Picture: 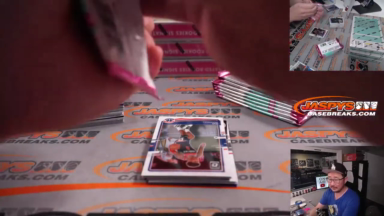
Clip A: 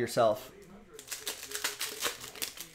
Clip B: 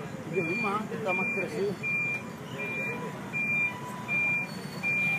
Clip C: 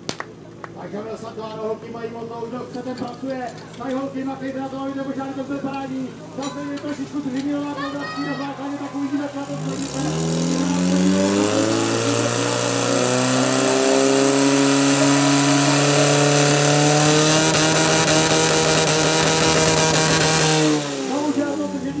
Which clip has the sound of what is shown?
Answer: A